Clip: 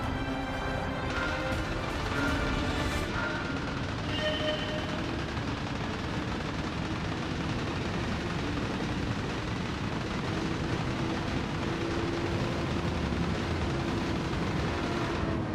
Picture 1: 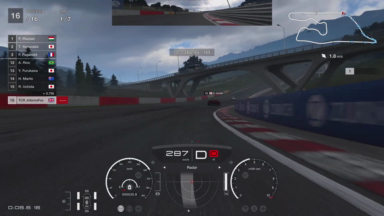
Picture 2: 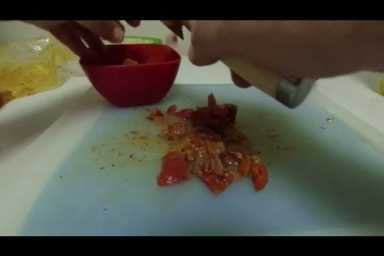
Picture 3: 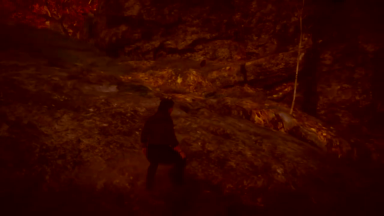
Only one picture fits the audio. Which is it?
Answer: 1